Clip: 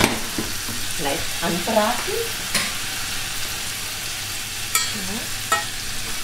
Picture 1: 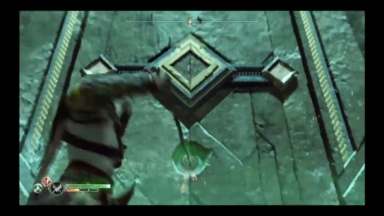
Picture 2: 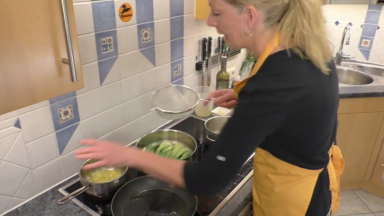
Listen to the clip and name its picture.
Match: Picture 2